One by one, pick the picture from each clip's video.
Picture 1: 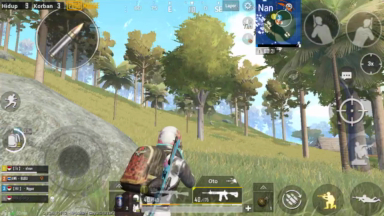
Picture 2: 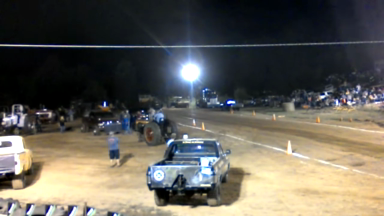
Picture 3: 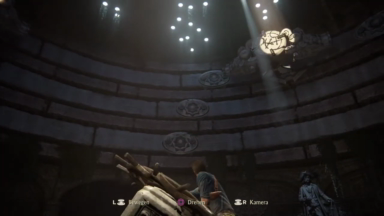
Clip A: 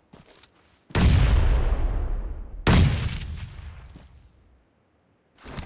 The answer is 1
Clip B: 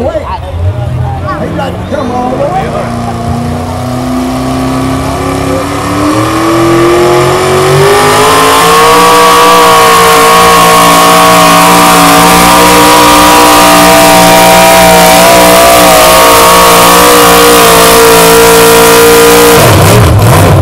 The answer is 2